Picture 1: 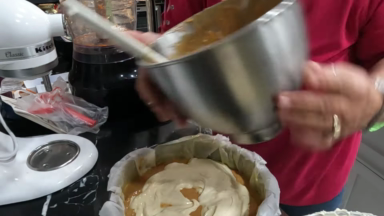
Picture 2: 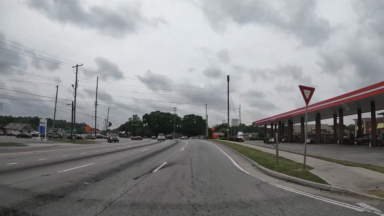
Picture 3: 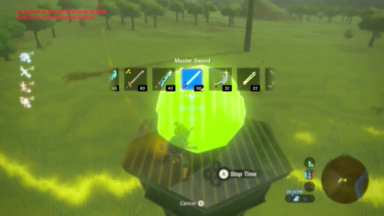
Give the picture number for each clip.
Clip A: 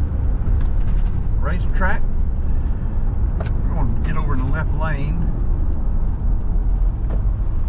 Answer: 2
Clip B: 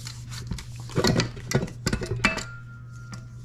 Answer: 1